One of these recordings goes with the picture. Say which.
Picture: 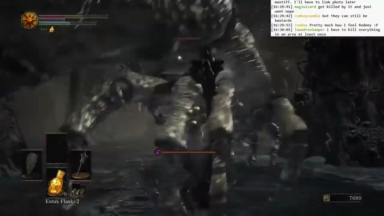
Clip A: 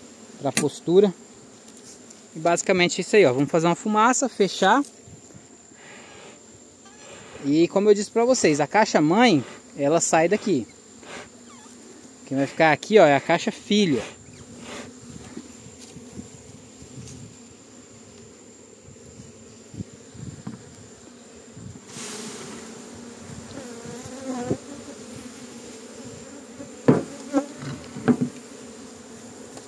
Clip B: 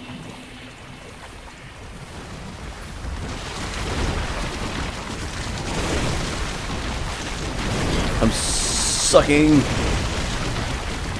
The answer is B